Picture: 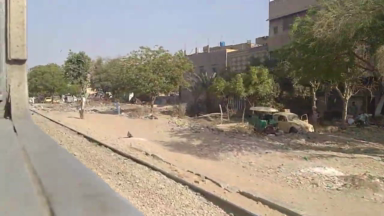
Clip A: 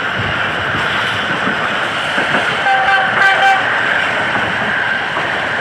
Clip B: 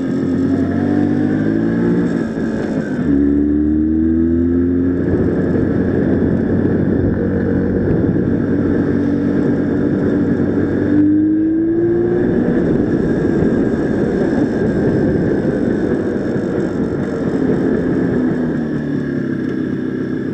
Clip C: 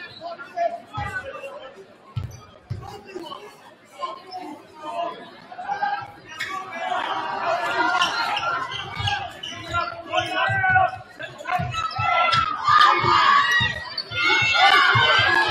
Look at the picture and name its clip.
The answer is A